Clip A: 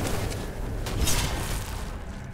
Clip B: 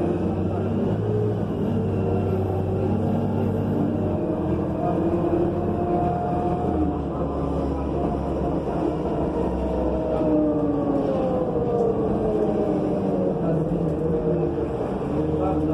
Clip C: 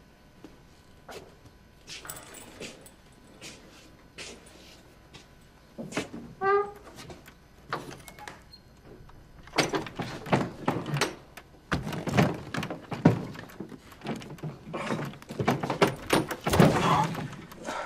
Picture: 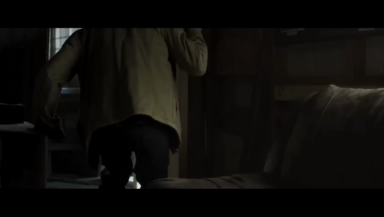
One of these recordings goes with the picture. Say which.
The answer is C